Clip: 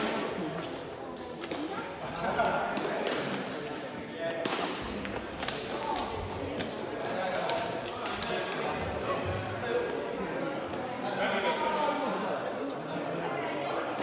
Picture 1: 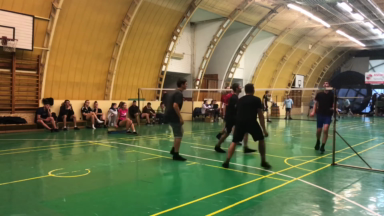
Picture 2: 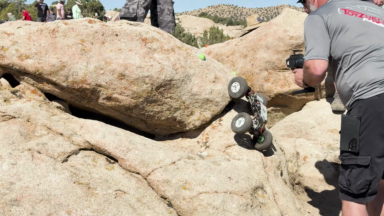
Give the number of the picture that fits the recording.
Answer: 1